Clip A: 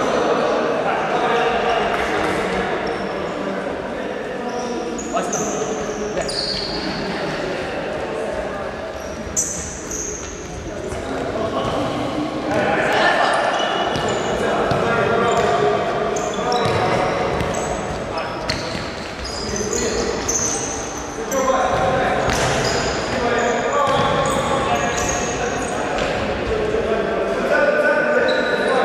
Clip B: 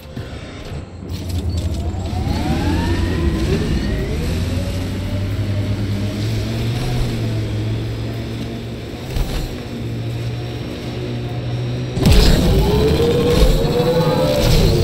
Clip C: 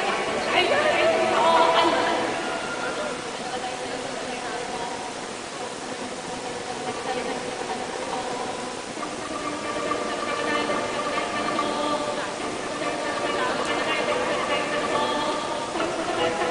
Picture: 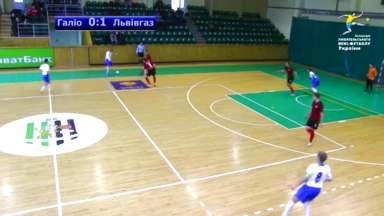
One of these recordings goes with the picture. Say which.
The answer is A